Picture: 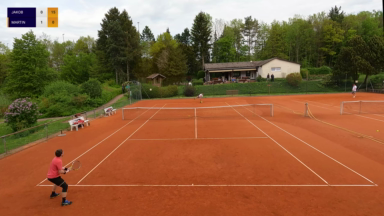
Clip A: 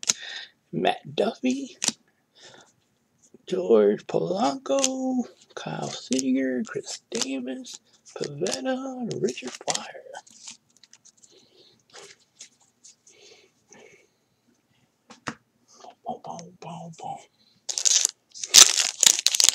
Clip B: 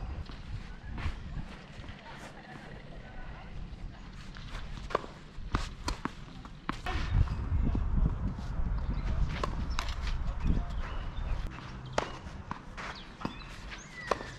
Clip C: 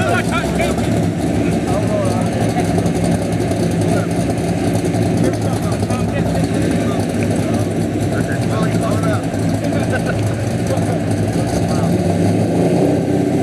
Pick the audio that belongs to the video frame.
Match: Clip B